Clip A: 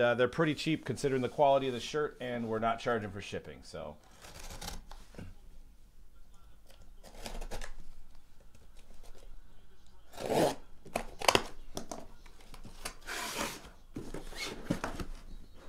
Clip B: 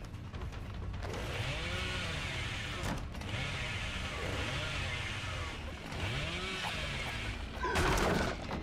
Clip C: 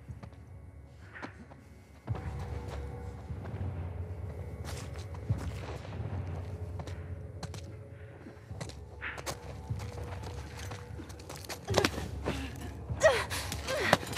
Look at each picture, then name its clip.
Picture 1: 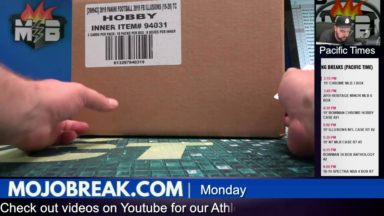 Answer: A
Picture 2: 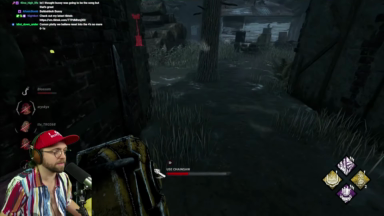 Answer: B